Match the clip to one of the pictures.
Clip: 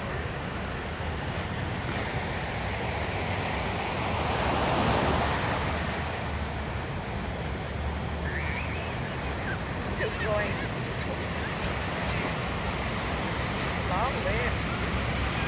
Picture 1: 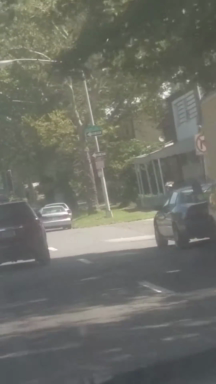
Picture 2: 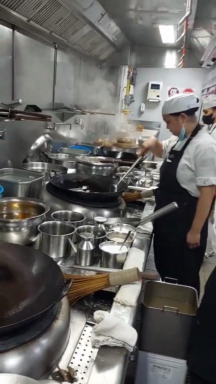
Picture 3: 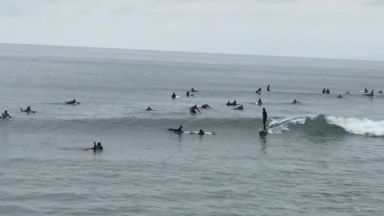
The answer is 3